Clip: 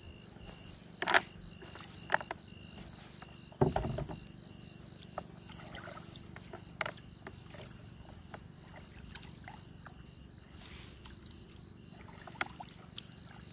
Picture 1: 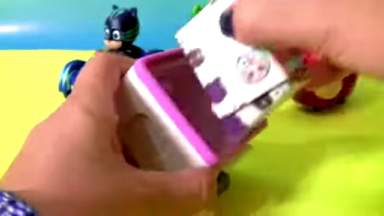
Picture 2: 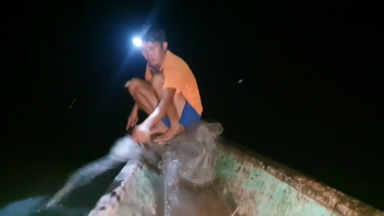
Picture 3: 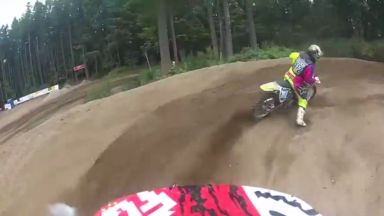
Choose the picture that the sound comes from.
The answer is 2